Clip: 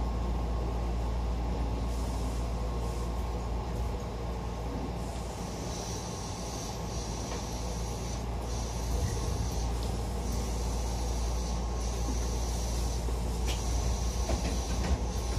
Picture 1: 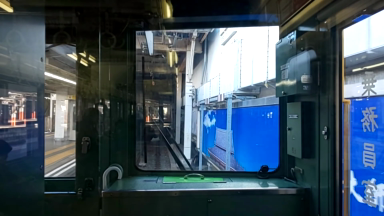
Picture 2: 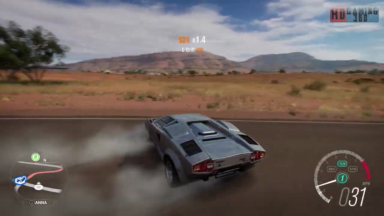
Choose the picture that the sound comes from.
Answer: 1